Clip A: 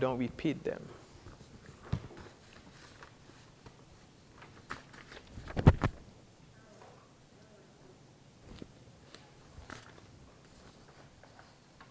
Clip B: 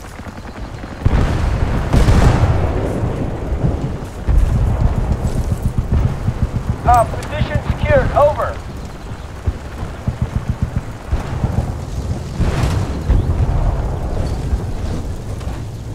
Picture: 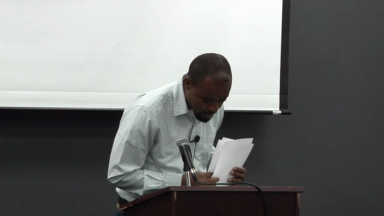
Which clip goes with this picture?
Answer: A